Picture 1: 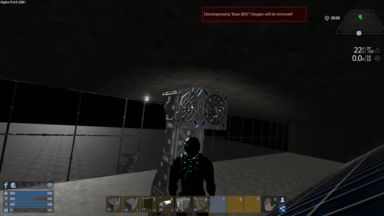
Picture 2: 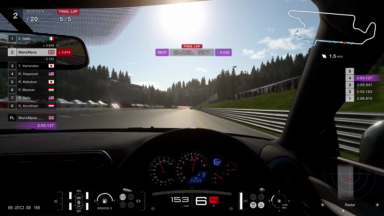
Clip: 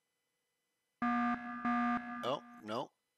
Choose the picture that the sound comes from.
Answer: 1